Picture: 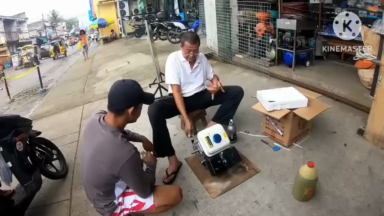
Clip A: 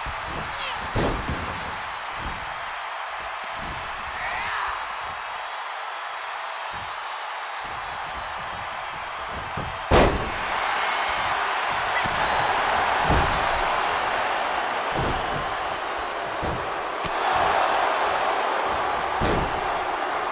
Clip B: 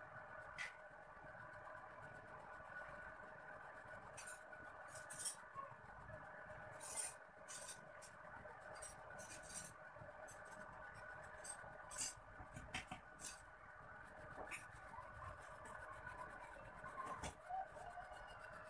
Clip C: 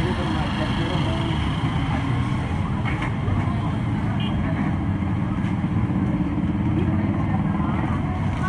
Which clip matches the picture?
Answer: C